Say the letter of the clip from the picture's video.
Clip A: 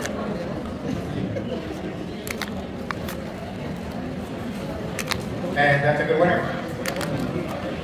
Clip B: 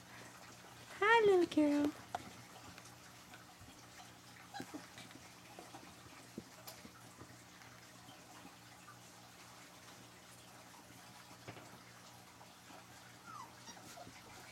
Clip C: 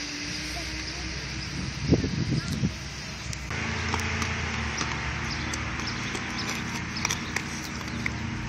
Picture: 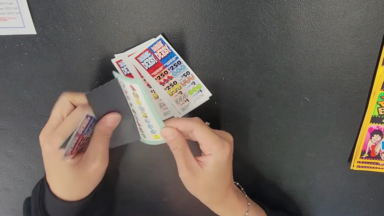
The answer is A